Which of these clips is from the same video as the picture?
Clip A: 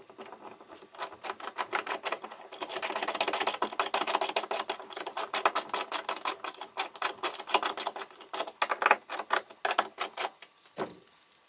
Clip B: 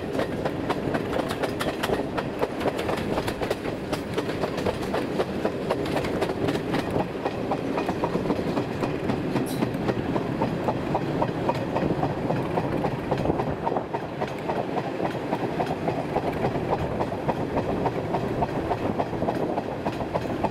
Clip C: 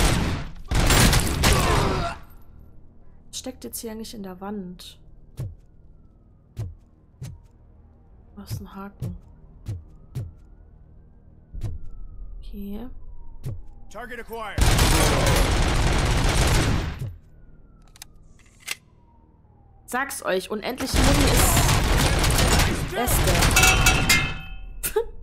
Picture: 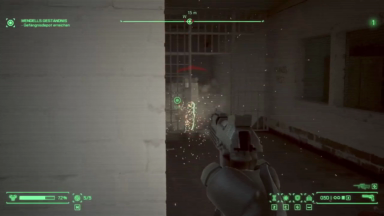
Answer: C